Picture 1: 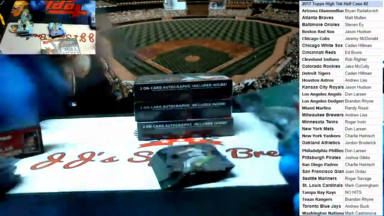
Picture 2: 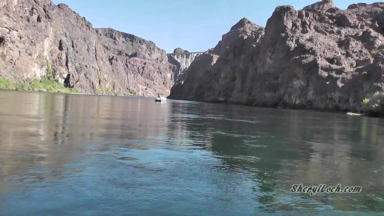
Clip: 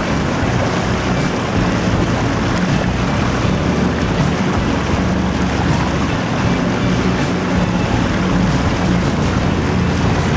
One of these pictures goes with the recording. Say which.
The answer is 2